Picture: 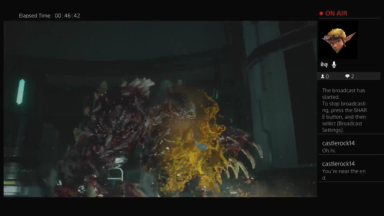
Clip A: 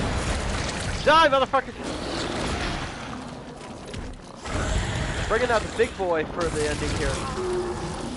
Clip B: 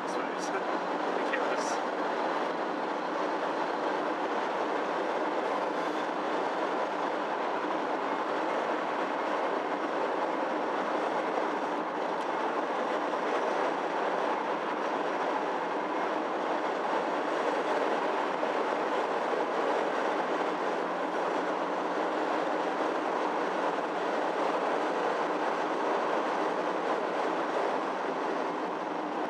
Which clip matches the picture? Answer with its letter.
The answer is A